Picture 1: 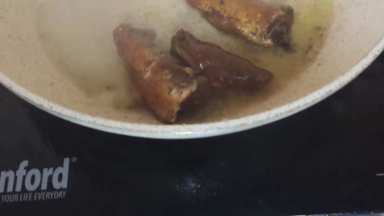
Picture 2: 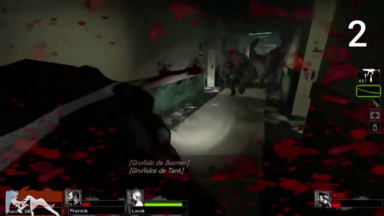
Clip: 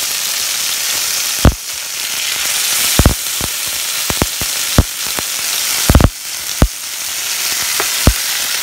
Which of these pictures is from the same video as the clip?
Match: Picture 1